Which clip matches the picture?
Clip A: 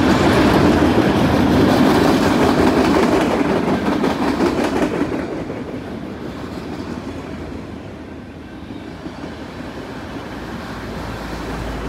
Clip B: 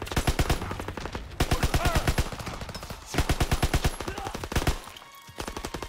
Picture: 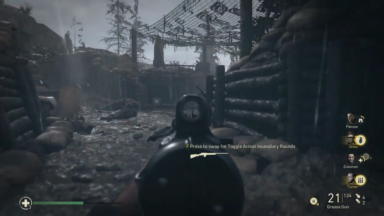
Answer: B